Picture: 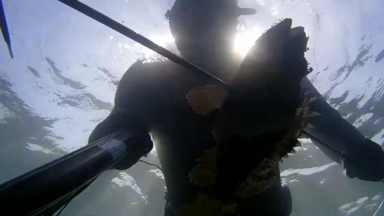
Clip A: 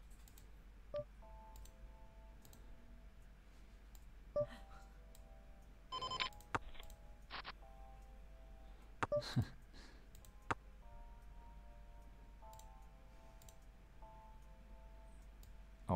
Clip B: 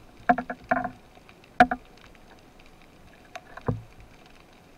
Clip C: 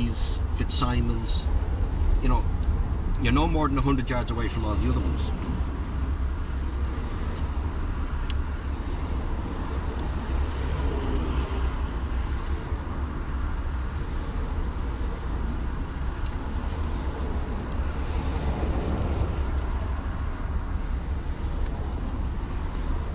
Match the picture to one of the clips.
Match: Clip B